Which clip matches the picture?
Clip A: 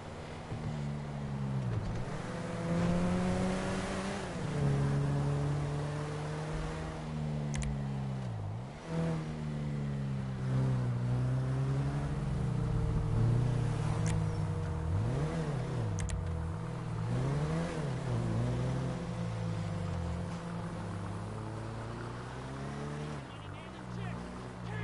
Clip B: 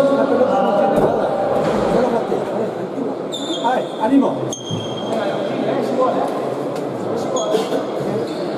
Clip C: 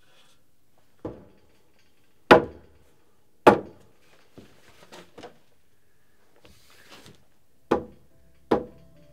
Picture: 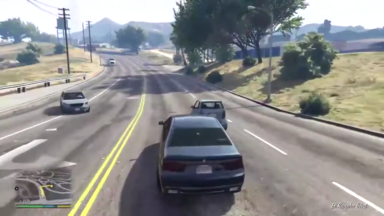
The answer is A